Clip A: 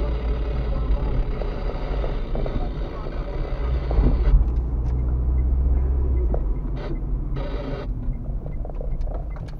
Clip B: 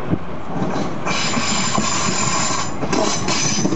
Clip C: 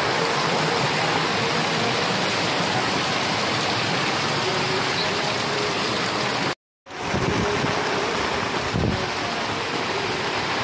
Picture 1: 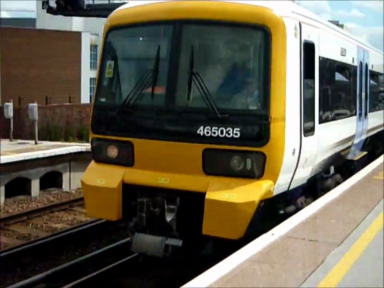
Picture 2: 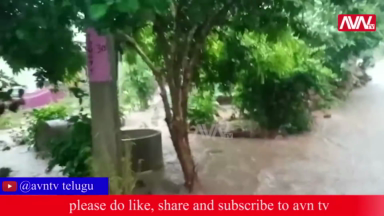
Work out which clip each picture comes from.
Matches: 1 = B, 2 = C